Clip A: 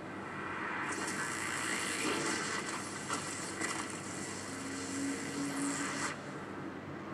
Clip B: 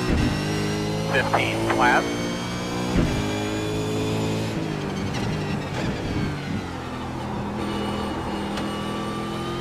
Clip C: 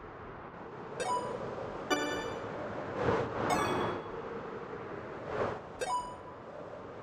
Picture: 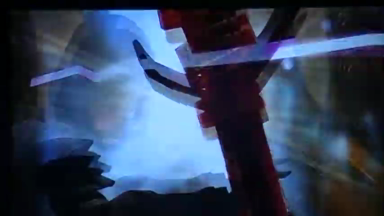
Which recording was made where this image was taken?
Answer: A